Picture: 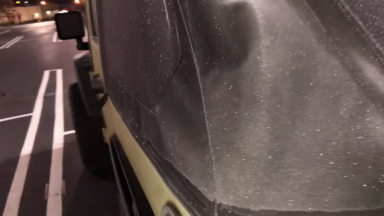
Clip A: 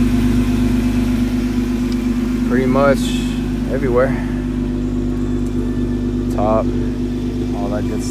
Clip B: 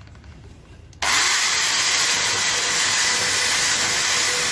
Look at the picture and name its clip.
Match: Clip A